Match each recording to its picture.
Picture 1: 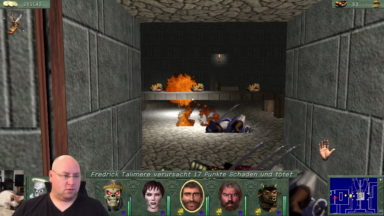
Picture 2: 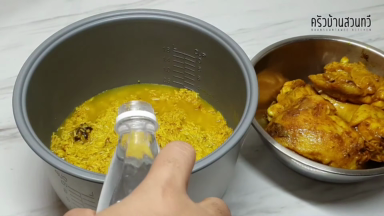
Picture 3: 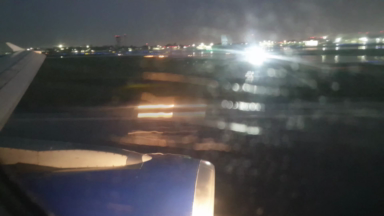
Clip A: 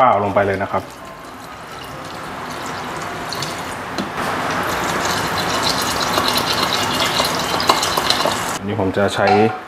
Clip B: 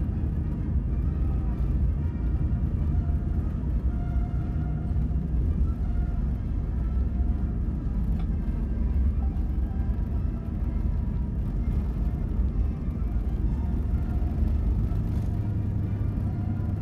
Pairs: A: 2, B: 3